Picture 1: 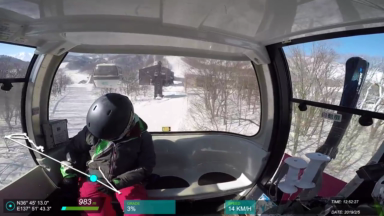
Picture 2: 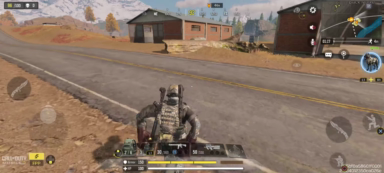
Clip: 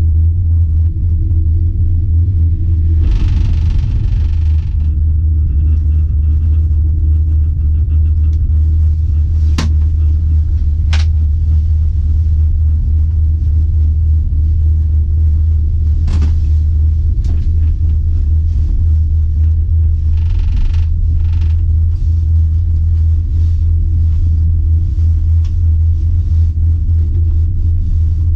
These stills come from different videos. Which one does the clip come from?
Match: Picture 1